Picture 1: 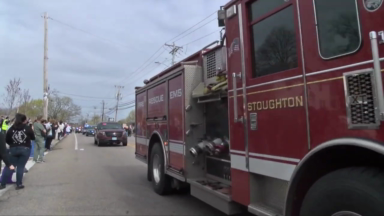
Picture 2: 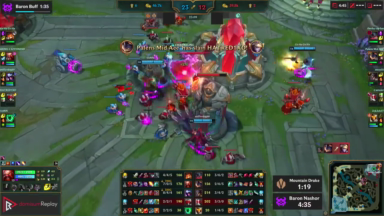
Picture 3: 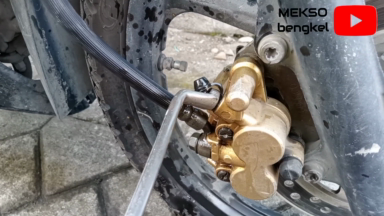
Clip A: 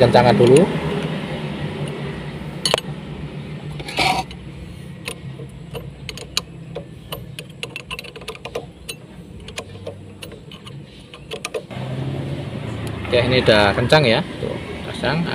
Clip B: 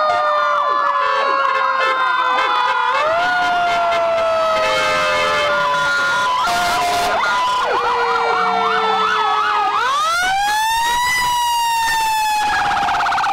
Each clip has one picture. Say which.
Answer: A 3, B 1